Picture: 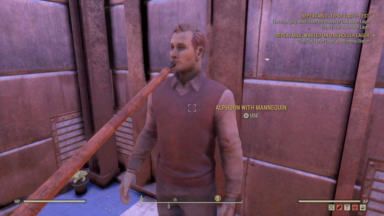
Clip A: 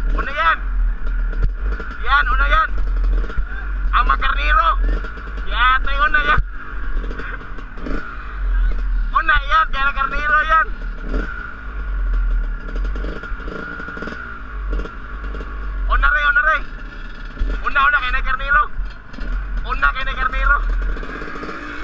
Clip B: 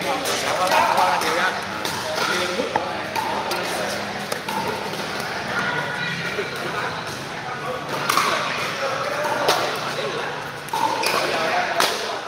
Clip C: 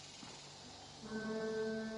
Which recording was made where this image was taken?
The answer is C